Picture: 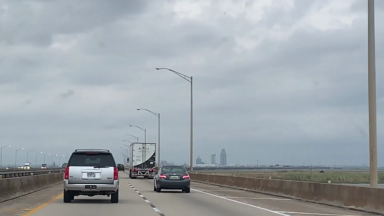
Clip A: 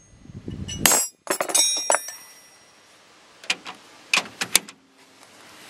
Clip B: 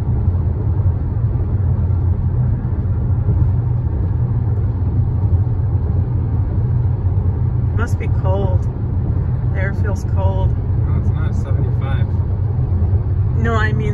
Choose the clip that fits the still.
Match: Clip B